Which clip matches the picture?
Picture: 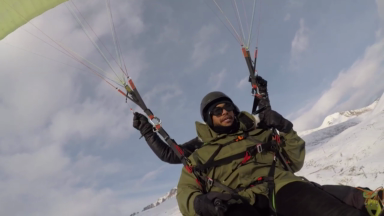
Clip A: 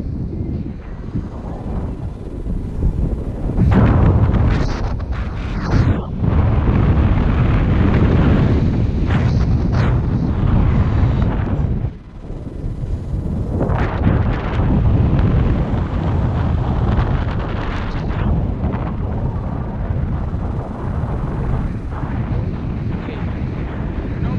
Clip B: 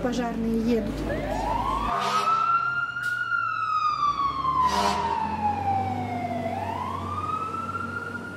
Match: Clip A